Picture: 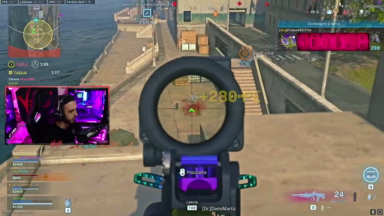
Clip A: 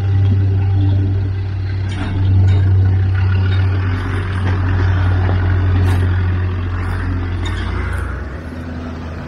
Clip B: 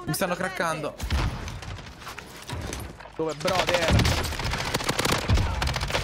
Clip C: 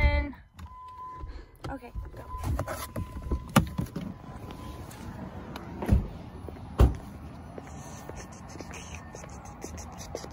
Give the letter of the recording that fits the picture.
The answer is B